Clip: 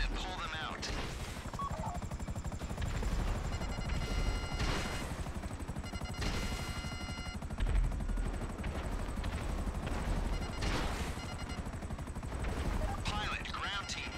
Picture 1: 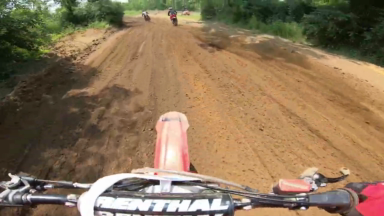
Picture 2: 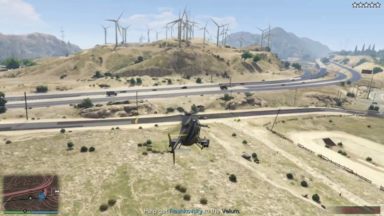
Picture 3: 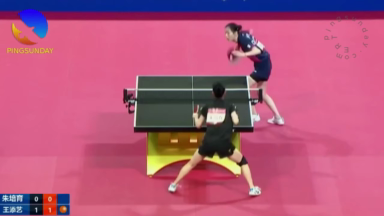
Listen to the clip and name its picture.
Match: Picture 2